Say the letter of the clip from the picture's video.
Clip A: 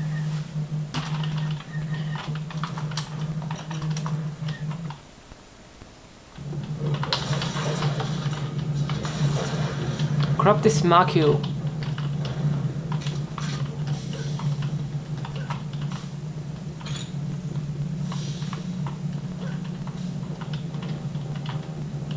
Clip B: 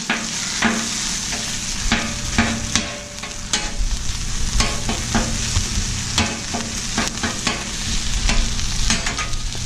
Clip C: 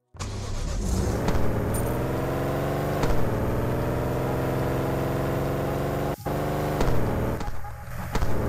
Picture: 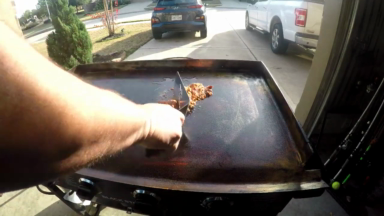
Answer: B